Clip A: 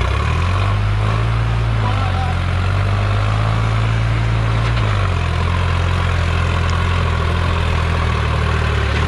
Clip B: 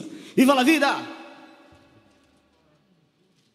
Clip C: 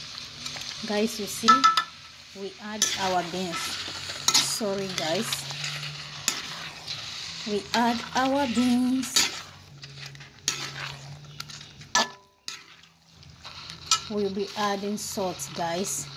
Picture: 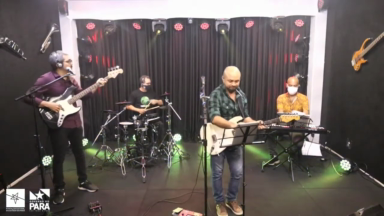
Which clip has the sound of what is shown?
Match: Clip B